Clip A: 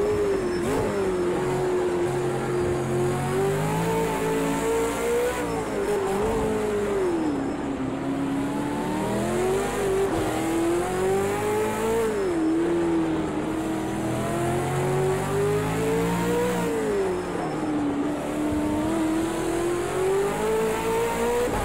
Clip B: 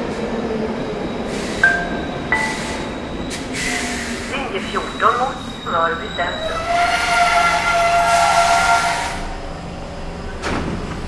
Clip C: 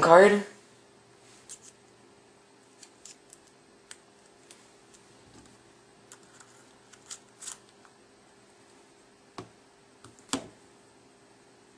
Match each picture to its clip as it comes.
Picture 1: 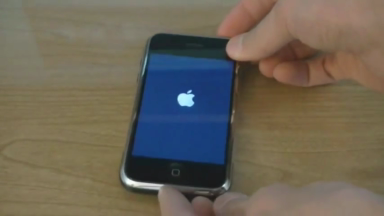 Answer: C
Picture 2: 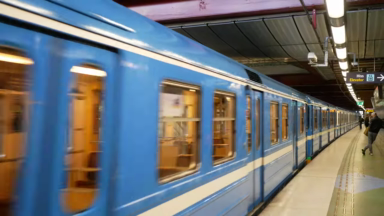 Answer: B